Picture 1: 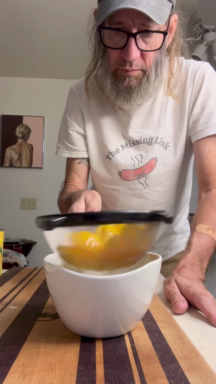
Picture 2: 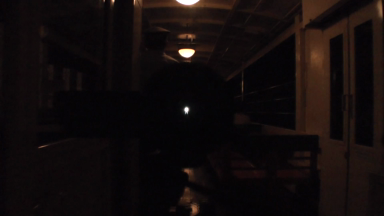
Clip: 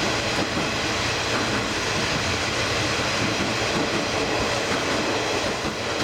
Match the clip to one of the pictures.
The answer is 2